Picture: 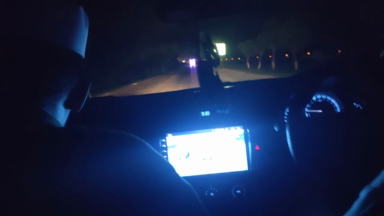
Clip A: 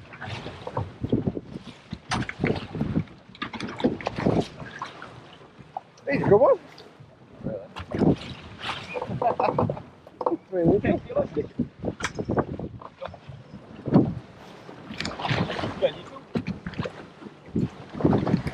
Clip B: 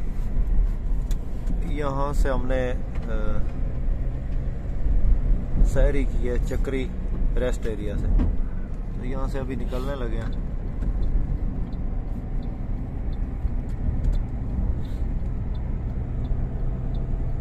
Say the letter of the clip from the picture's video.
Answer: B